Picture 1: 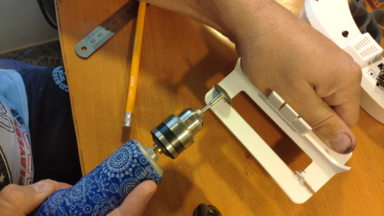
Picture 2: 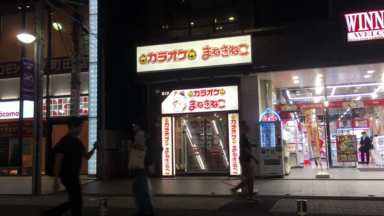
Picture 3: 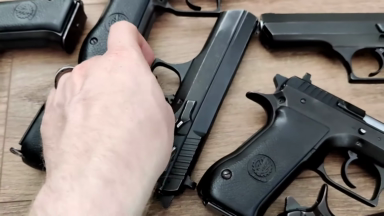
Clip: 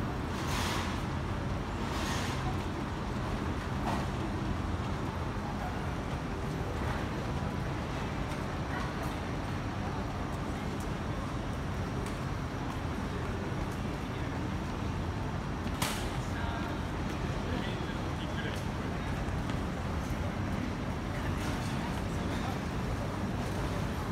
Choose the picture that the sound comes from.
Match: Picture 2